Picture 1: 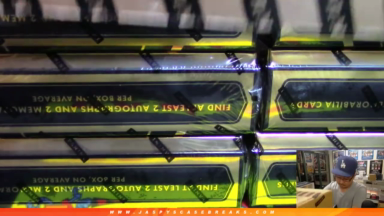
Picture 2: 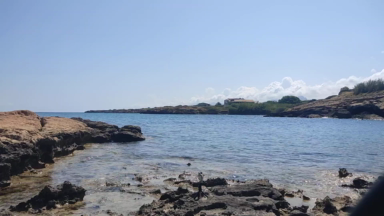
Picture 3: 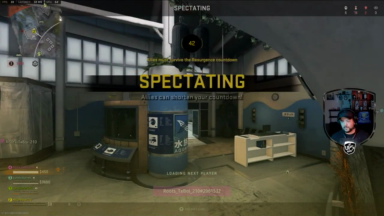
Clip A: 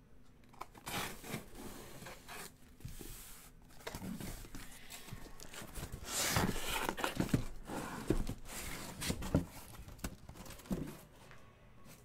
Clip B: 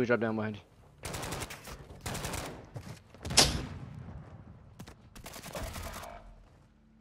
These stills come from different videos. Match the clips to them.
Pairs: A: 1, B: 3